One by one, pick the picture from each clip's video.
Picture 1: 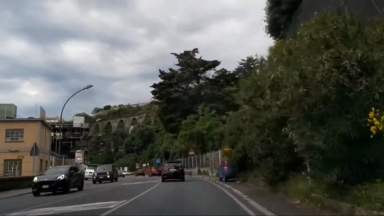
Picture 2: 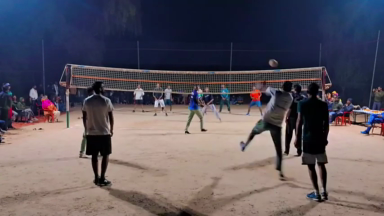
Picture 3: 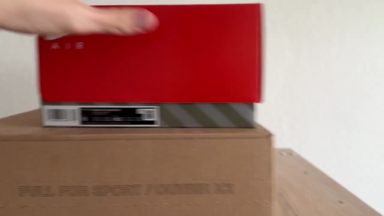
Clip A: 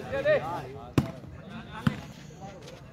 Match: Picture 2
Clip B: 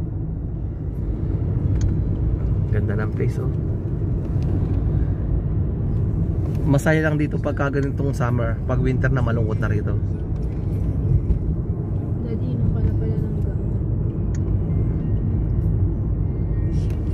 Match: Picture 1